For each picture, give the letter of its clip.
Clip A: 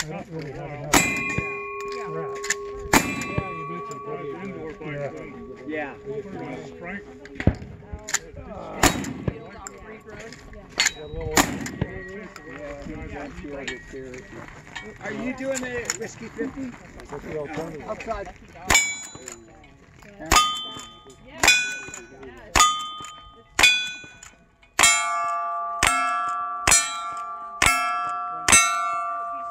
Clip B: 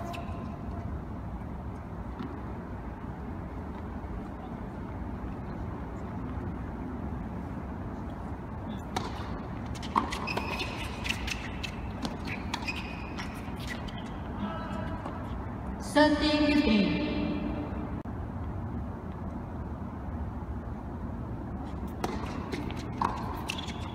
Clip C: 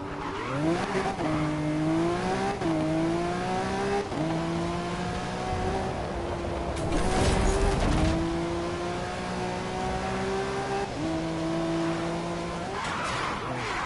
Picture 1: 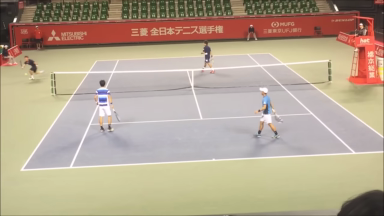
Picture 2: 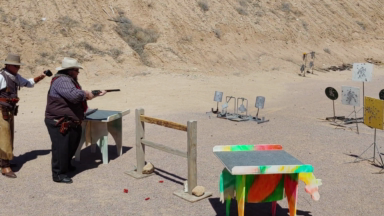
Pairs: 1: B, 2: A